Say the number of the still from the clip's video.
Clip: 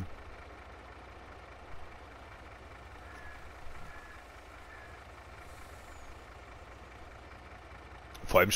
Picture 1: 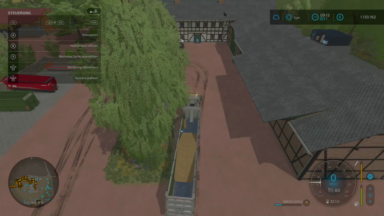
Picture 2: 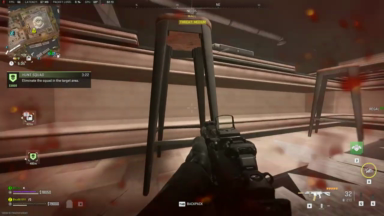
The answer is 1